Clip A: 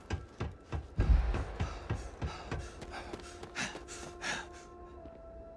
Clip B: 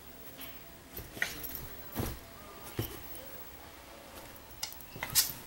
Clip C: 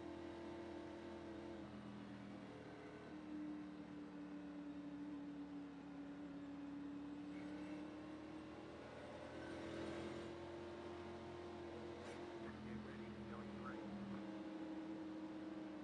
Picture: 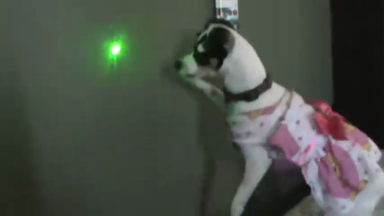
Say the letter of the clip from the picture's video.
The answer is B